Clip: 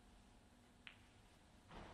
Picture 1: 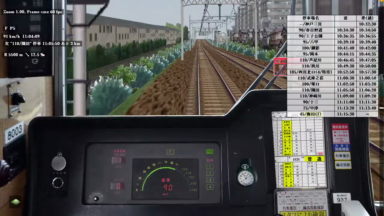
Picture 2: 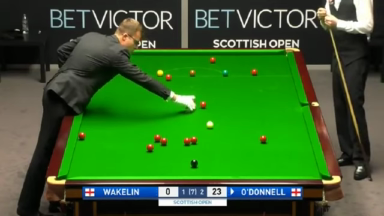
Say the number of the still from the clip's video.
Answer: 2